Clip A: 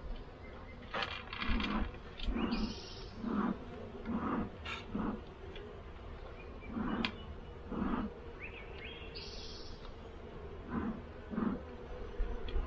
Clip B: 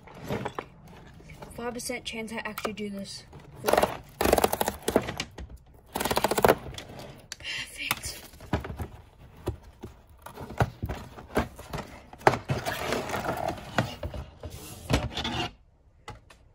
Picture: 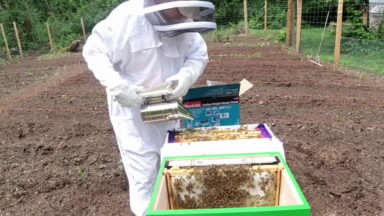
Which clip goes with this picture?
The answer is A